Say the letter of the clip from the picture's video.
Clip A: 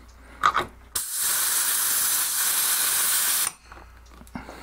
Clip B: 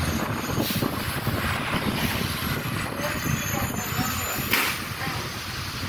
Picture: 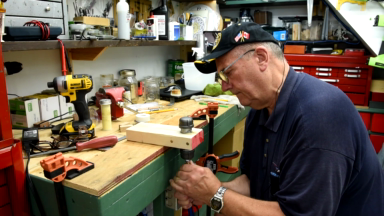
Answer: A